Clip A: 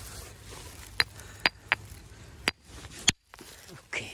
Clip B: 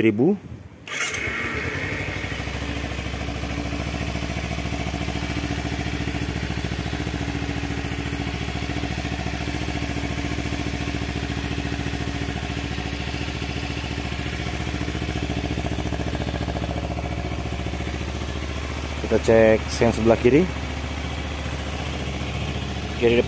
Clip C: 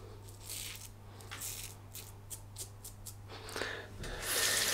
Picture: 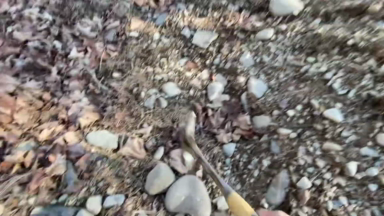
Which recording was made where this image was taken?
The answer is A